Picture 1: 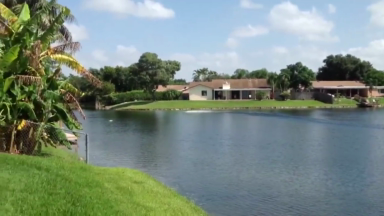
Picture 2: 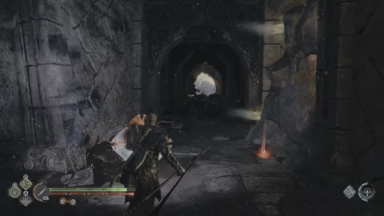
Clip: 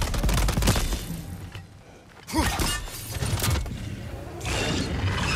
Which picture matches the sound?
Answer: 2